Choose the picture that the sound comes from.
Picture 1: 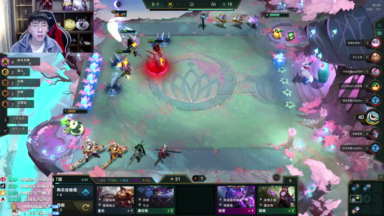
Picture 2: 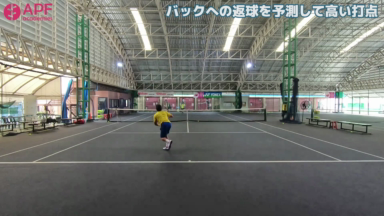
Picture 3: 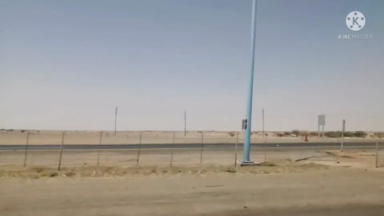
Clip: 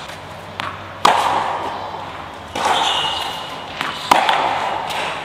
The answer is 2